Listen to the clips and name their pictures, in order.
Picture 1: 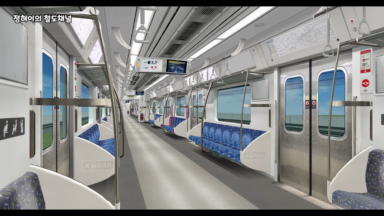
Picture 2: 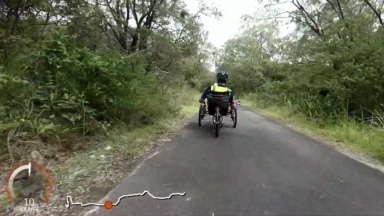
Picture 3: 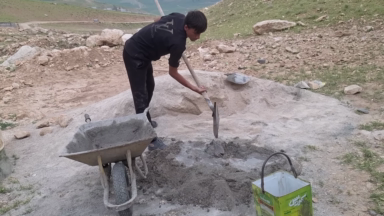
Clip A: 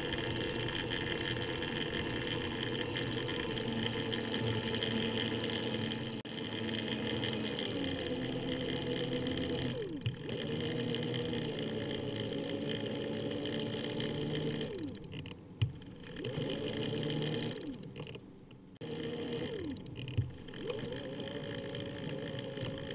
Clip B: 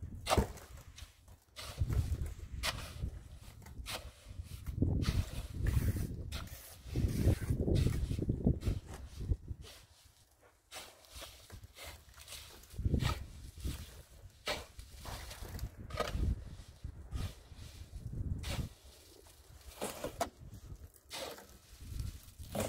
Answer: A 2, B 3